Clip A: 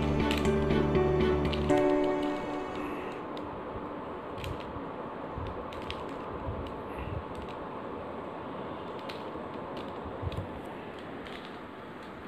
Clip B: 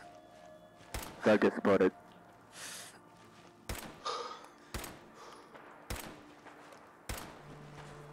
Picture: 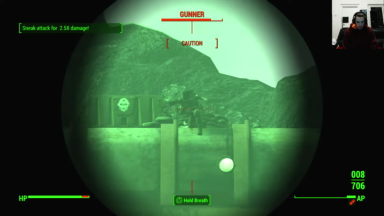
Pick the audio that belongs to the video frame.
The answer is B